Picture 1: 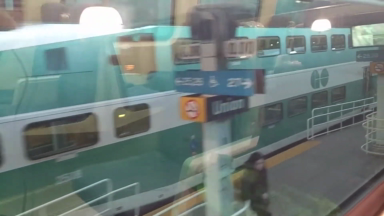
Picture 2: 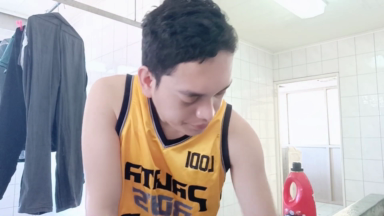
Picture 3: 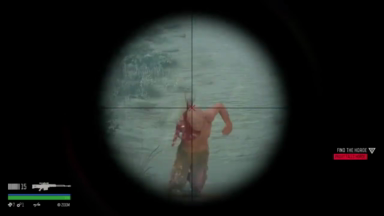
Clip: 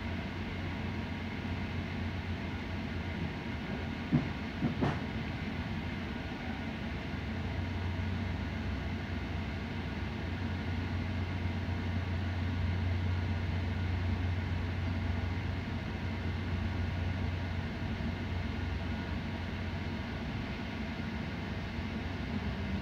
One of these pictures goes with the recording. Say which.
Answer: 1